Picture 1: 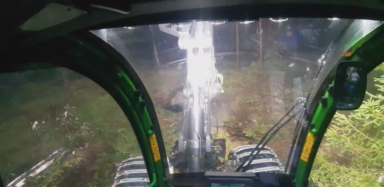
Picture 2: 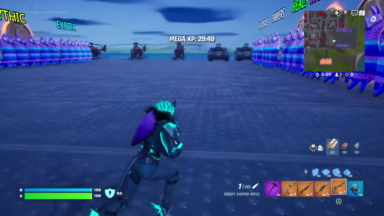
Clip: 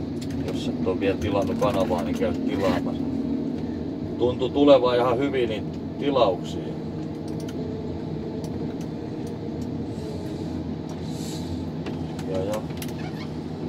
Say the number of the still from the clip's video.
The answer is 1